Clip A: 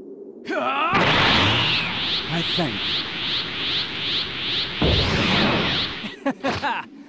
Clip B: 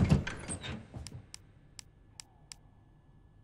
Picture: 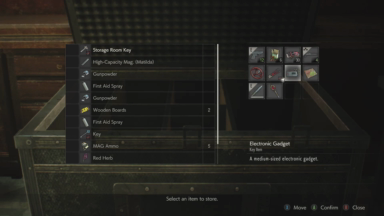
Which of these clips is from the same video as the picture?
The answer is B